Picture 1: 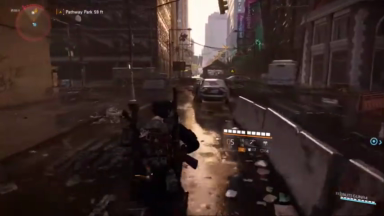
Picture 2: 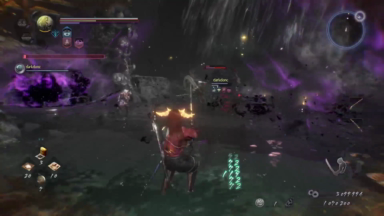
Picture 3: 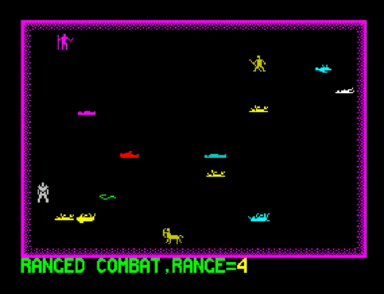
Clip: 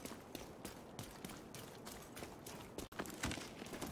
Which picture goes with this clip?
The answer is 1